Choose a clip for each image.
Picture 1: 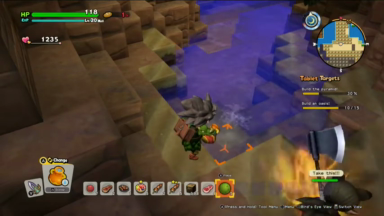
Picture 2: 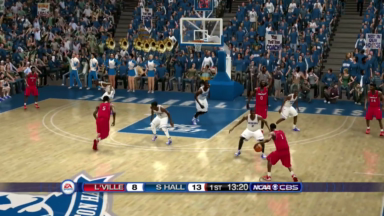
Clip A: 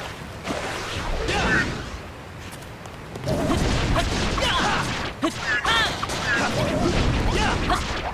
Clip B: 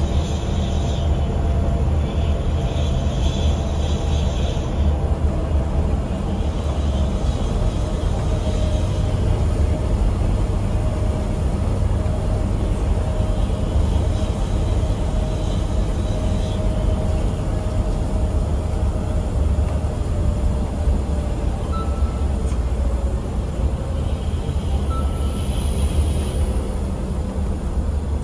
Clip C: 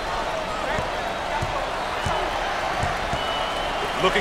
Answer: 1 A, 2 C